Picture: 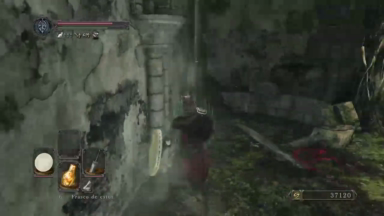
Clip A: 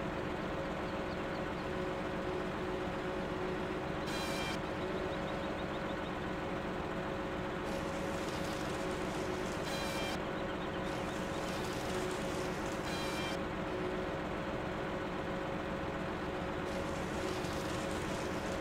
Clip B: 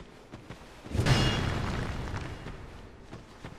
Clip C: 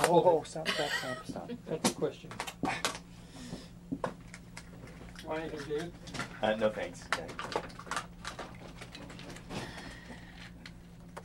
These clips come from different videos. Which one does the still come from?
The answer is B